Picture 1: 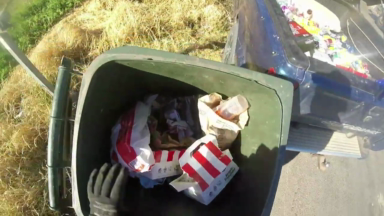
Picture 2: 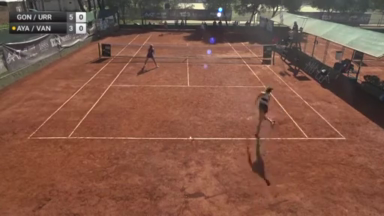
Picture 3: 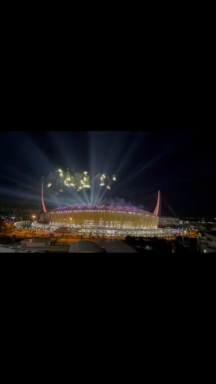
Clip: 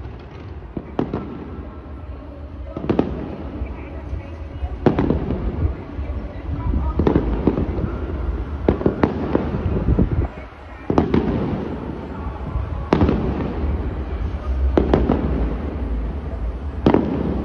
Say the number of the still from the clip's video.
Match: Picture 3